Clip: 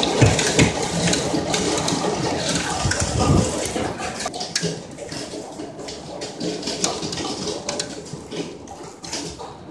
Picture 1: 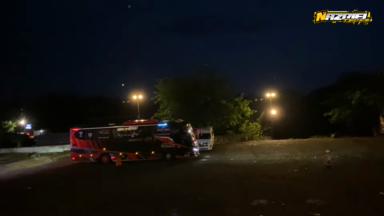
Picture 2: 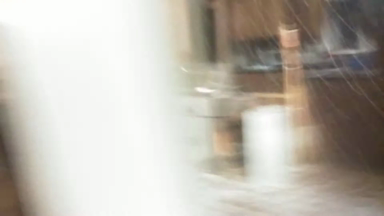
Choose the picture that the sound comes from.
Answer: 2